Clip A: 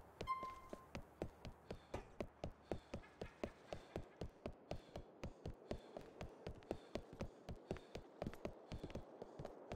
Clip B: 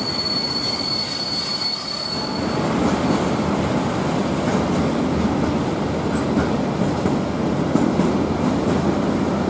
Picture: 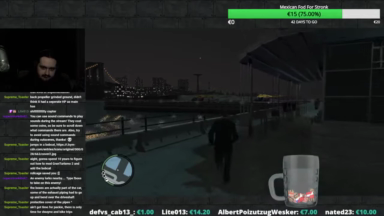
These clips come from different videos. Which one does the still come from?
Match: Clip A